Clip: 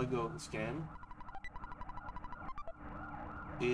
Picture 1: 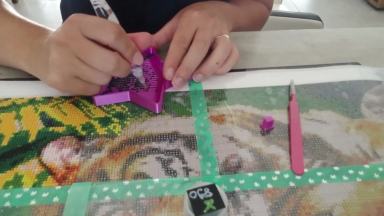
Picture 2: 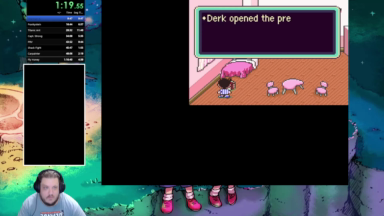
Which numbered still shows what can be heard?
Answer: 2